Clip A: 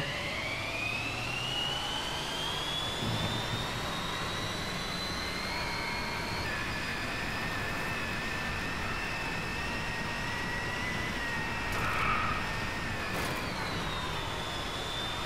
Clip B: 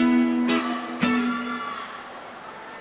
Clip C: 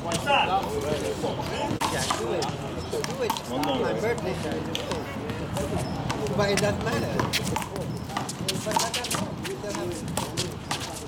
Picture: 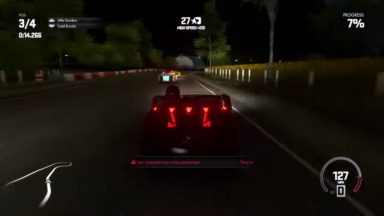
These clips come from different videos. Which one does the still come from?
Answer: A